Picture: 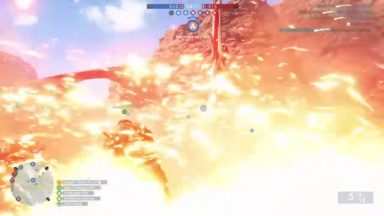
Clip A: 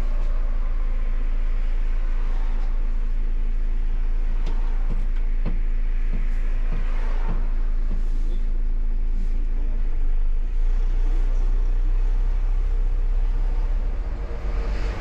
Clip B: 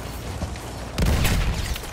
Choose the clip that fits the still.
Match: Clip B